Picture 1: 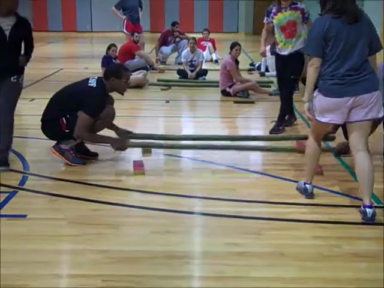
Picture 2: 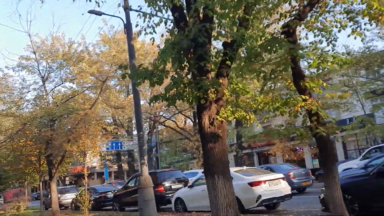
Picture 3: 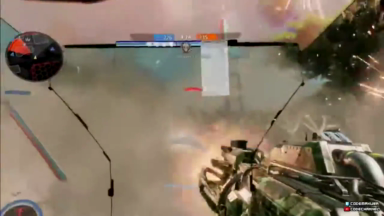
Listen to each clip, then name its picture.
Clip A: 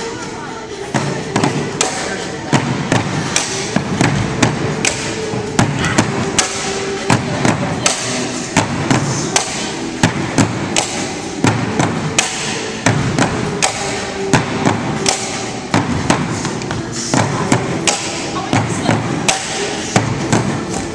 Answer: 1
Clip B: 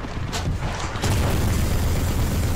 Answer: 3